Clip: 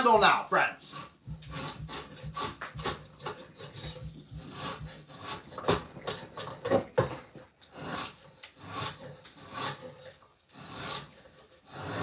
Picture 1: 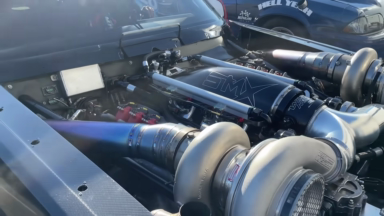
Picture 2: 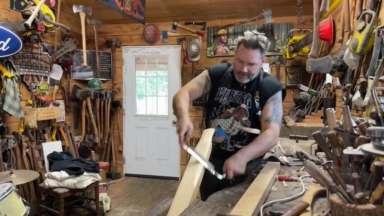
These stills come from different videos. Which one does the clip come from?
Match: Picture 2